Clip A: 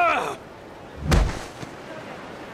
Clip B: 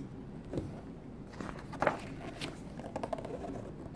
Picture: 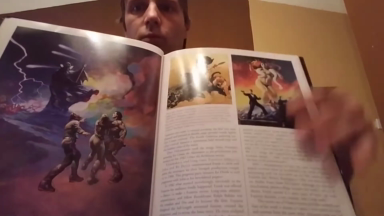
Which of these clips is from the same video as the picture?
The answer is B